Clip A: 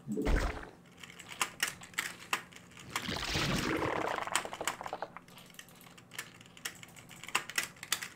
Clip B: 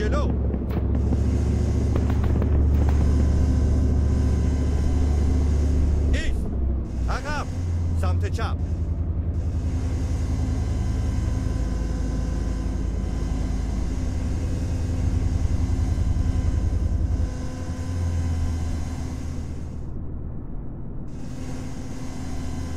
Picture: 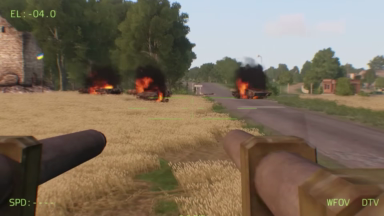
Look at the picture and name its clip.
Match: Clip B